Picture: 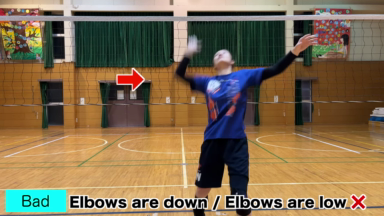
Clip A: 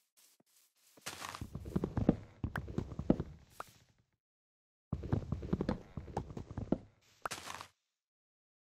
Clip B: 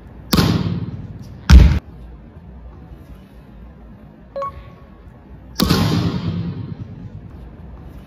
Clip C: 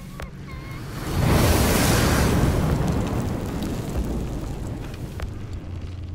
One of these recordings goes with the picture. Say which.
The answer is B